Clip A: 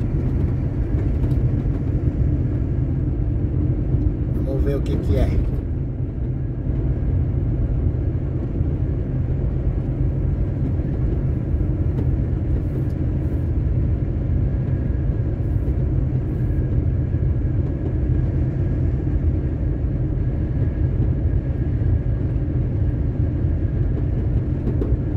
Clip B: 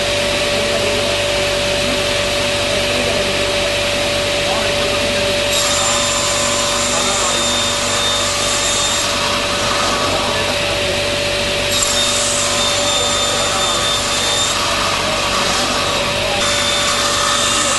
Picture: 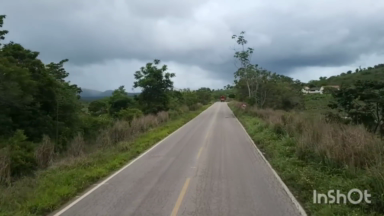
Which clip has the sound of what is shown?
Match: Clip A